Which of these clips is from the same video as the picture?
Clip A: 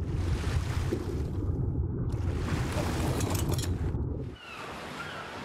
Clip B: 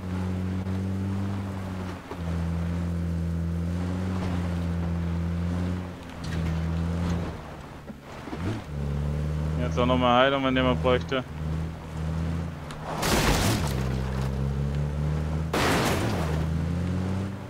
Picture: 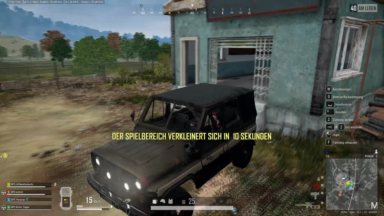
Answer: B